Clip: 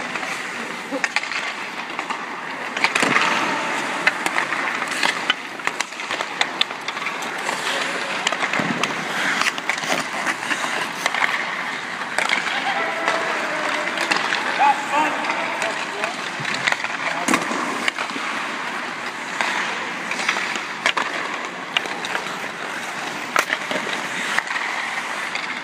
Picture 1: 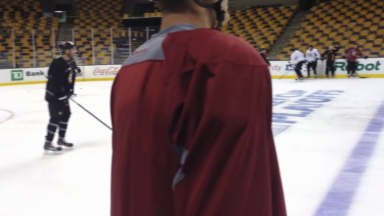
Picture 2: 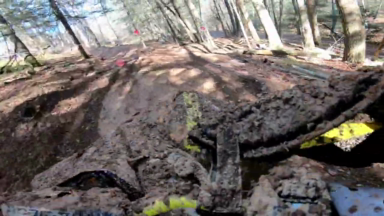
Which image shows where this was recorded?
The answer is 1